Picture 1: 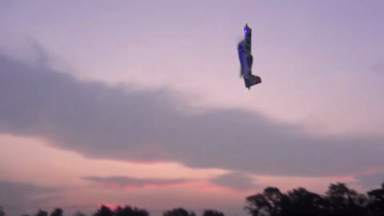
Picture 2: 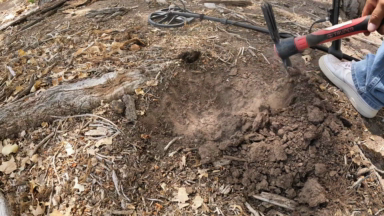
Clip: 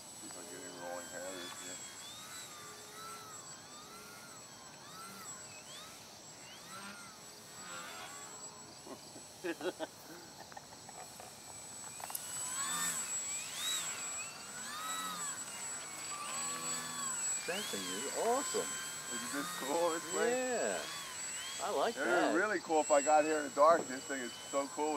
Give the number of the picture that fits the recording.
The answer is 1